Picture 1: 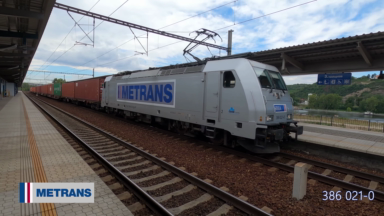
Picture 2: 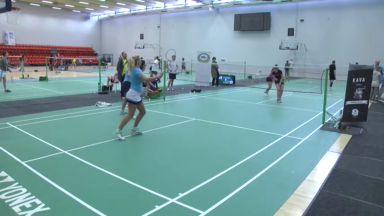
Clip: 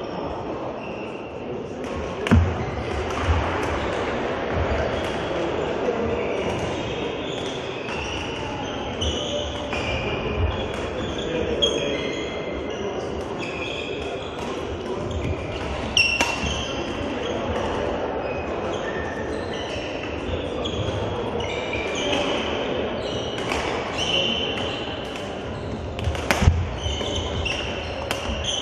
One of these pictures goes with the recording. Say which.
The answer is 2